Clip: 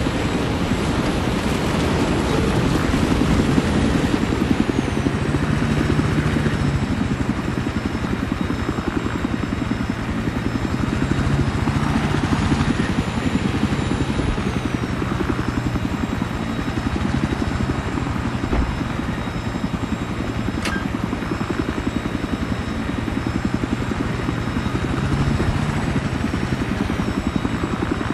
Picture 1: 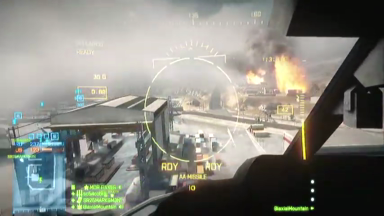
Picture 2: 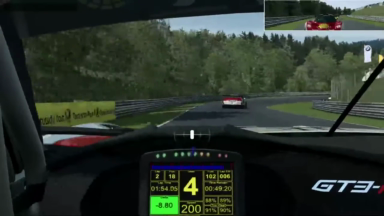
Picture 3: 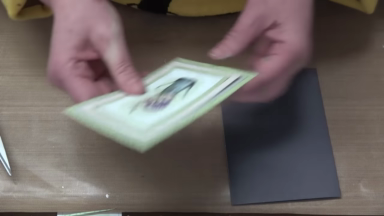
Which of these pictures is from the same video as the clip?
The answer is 1